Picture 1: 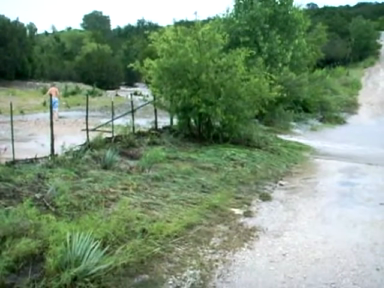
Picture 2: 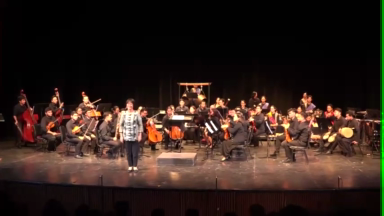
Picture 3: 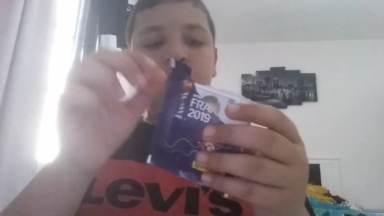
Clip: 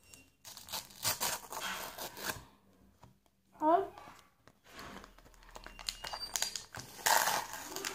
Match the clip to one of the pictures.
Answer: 3